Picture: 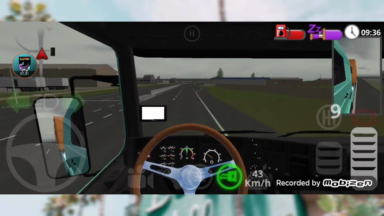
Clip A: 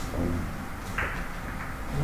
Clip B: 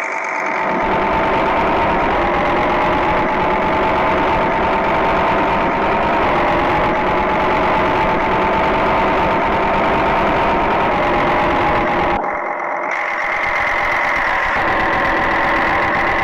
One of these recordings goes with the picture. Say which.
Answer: B